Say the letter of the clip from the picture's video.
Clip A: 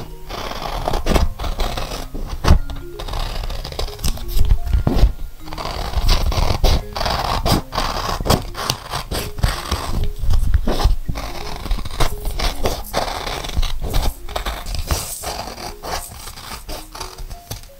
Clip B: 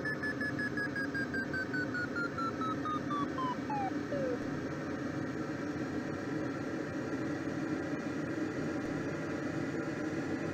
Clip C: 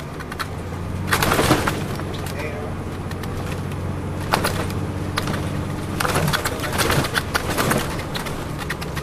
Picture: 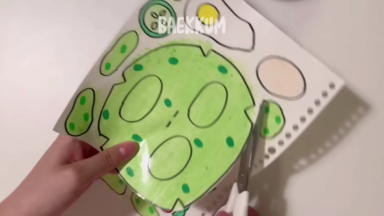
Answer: A